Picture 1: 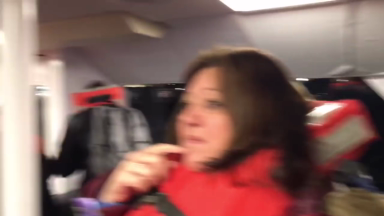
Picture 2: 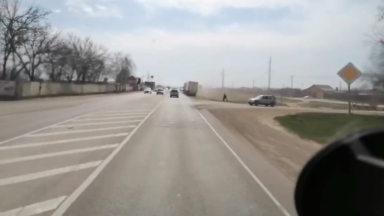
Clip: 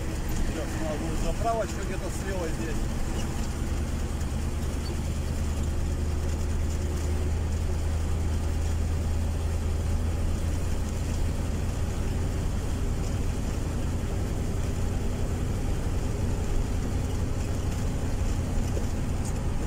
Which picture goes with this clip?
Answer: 2